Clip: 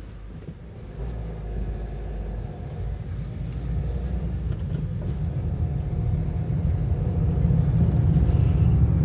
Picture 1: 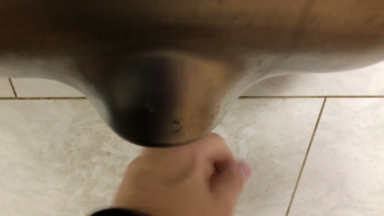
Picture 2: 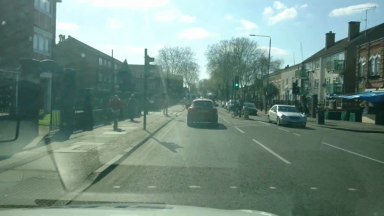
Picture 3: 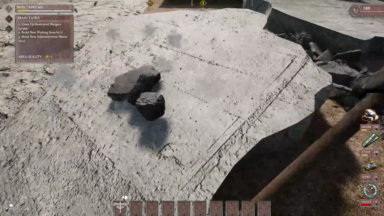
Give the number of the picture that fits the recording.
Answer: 2